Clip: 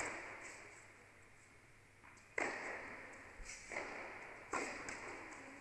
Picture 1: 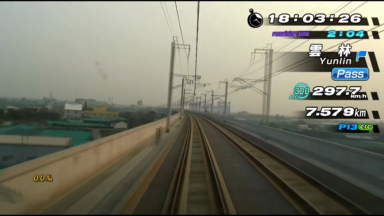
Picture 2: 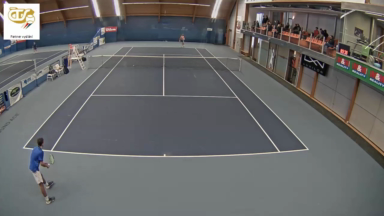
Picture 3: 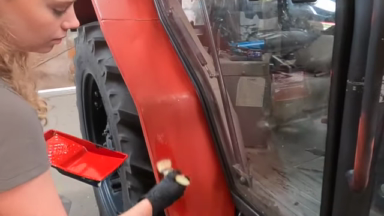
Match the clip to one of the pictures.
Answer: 2